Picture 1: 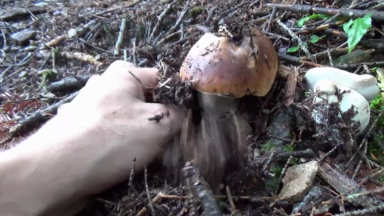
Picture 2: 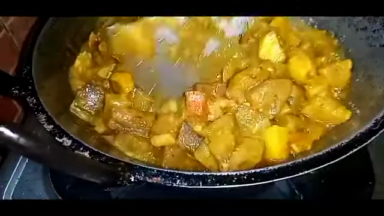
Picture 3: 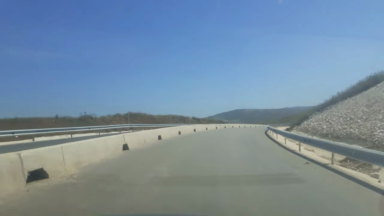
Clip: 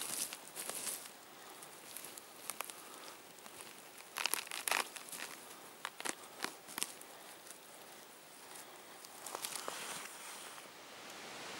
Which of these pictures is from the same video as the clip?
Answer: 1